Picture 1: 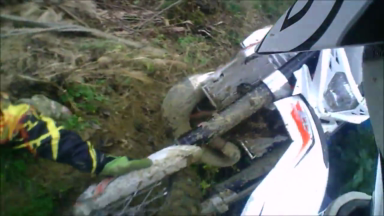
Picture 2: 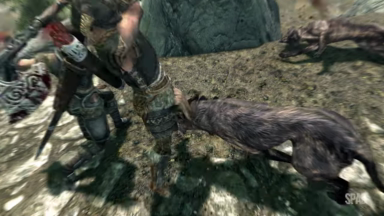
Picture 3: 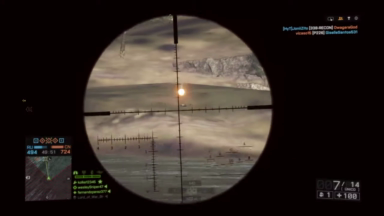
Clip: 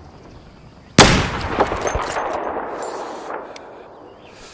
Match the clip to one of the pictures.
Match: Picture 3